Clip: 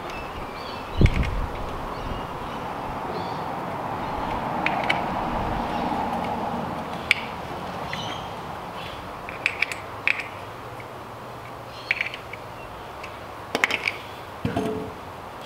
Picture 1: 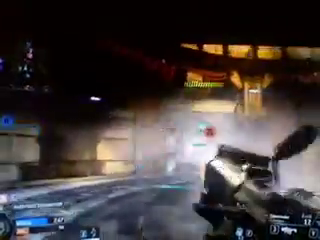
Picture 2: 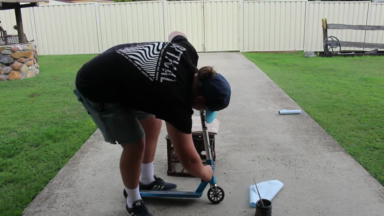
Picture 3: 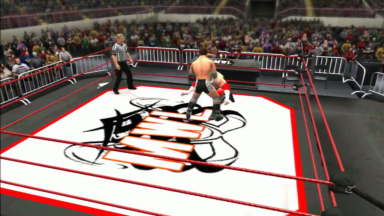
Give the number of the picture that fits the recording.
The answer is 2